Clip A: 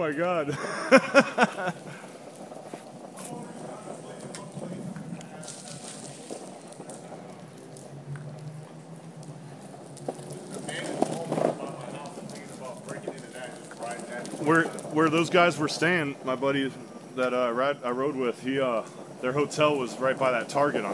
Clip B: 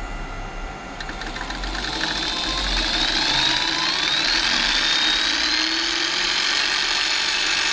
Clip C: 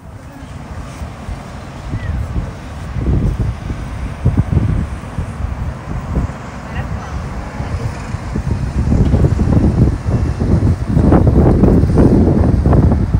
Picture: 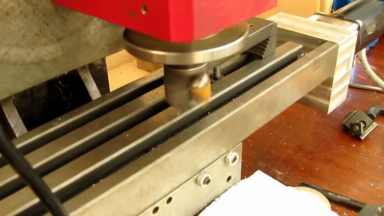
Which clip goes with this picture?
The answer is B